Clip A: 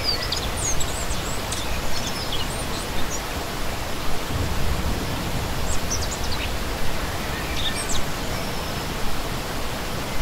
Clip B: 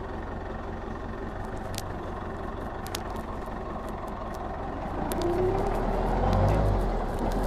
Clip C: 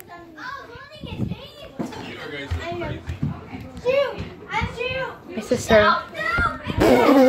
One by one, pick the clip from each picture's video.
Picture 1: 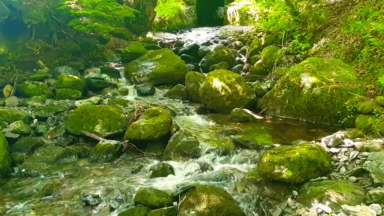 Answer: A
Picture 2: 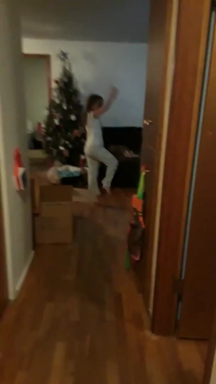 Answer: C